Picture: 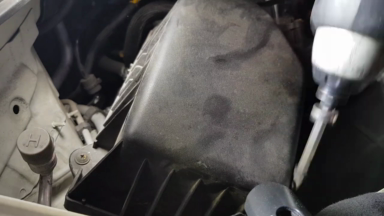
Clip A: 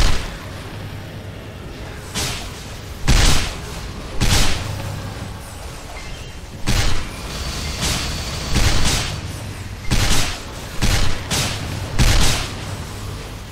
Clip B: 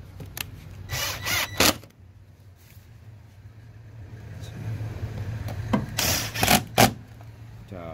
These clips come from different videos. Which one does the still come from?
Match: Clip B